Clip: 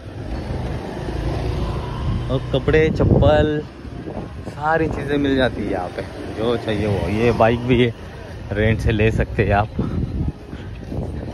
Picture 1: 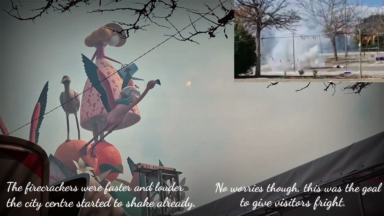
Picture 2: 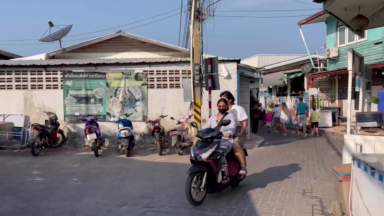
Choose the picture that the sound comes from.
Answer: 2